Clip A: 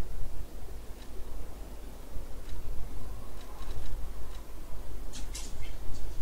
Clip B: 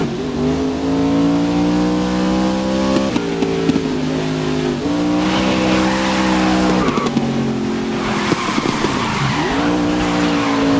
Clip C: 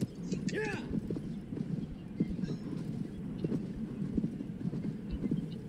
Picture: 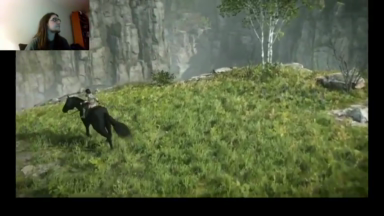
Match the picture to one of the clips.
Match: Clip C